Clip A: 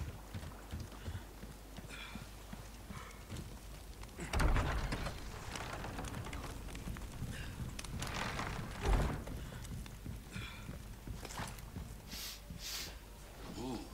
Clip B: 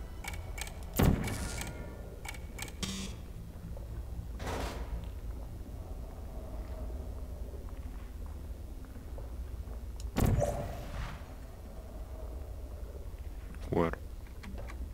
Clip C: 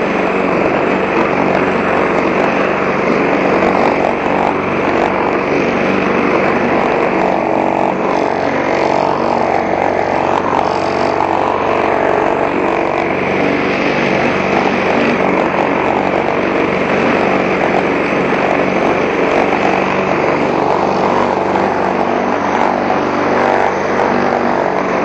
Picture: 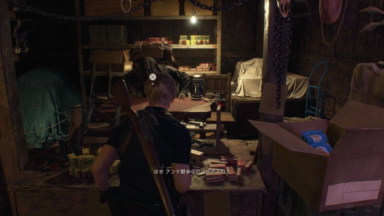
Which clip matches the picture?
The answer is A